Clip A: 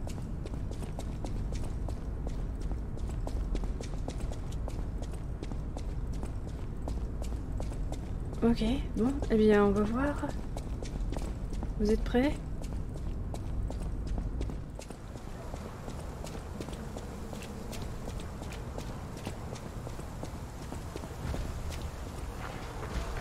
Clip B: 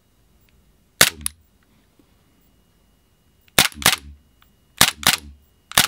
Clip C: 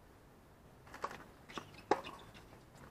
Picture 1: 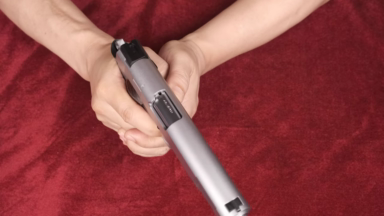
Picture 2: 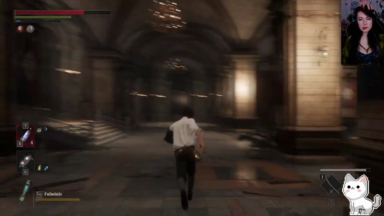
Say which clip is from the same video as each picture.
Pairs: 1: B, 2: A